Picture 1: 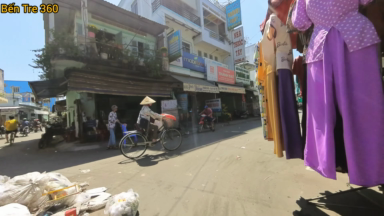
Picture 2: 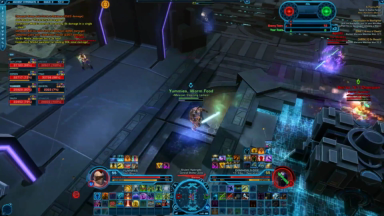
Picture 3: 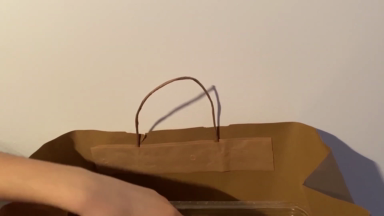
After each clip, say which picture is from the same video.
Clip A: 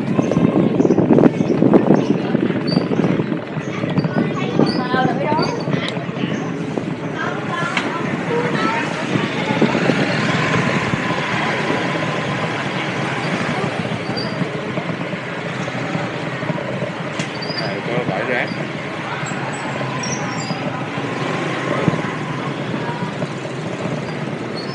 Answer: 1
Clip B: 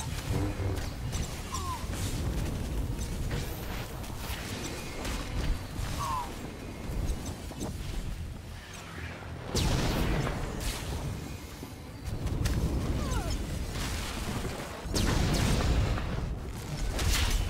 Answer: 2